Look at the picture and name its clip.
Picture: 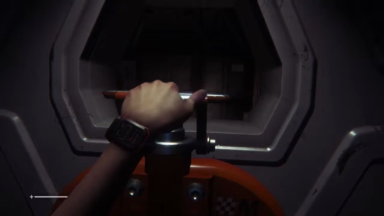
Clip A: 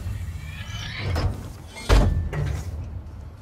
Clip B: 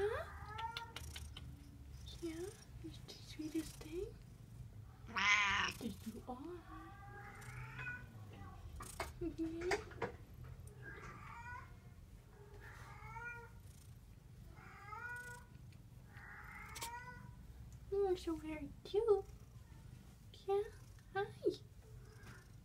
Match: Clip A